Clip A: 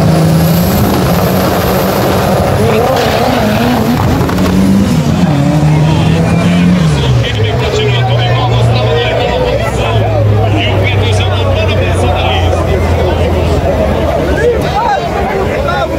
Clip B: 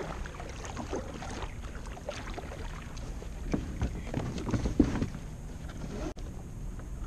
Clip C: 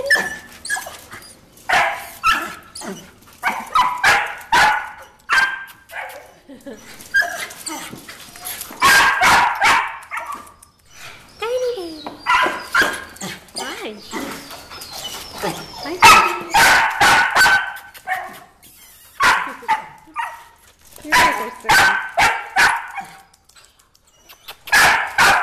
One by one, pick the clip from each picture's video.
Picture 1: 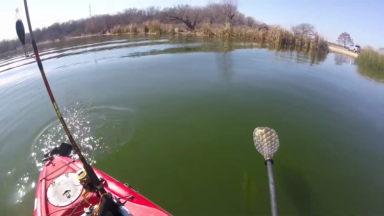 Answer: B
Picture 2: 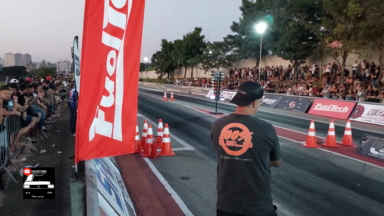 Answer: A